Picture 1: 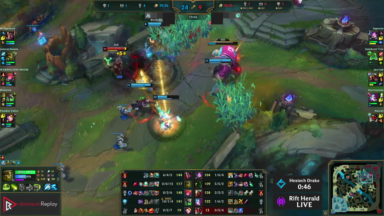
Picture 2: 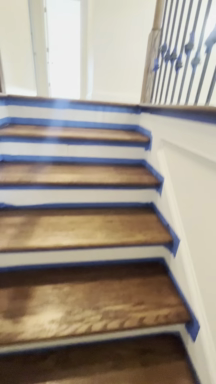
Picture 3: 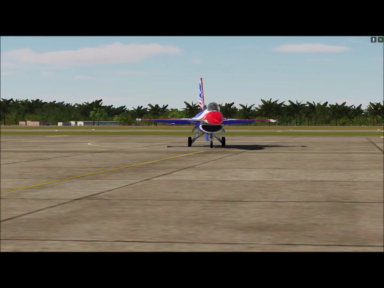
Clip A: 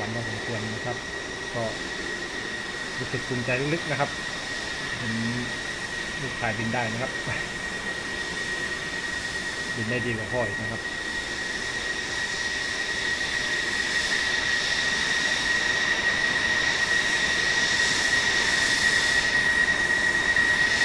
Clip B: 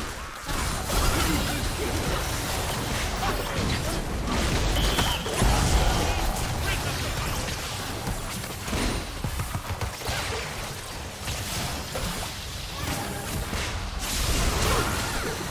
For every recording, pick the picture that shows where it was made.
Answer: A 3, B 1